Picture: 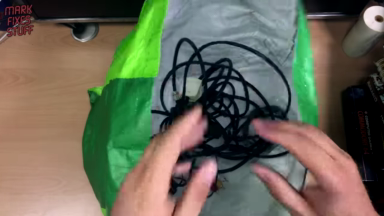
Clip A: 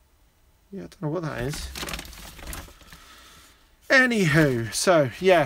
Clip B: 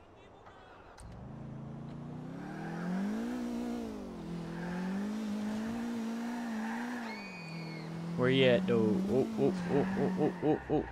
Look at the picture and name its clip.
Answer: A